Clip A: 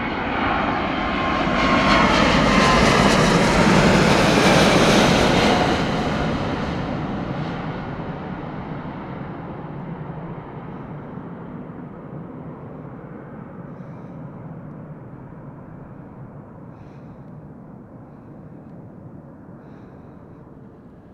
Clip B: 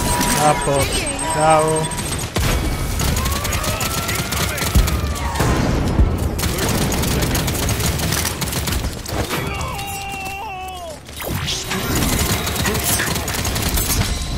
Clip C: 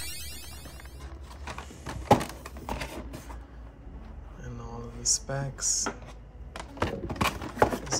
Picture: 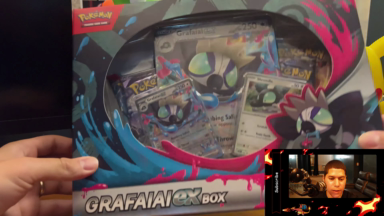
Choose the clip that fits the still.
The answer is C